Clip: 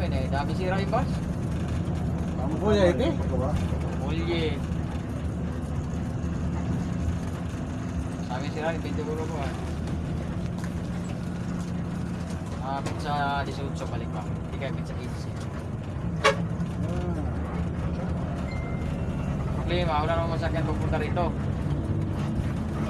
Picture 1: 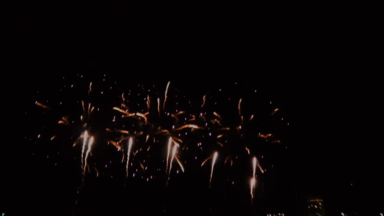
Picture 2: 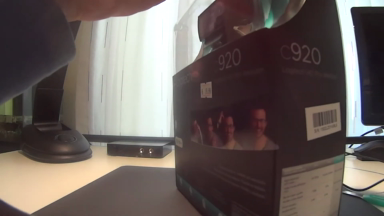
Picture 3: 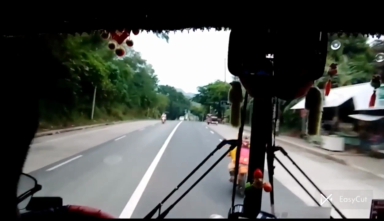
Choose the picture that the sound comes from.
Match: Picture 3